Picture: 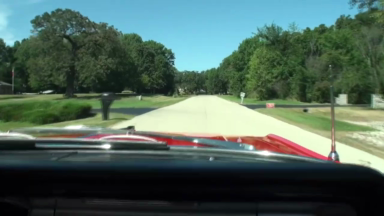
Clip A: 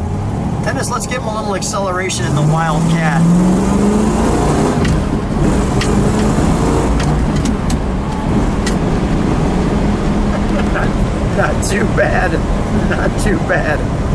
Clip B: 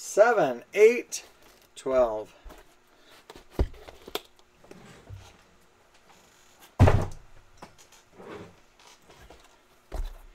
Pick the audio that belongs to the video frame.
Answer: A